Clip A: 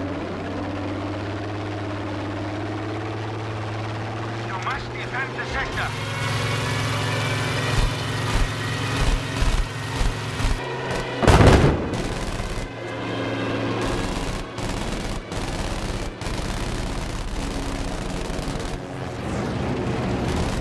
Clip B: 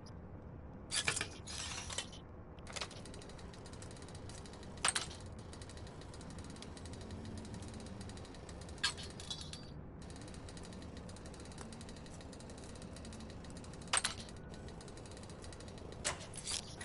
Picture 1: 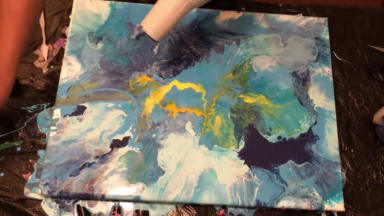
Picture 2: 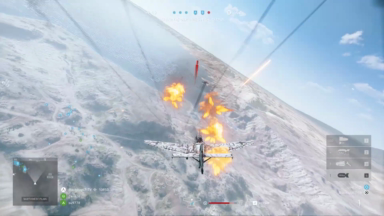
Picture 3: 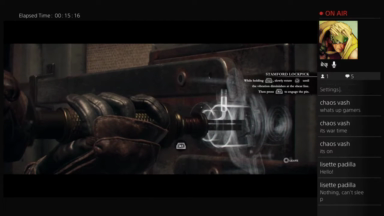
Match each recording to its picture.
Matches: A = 2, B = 3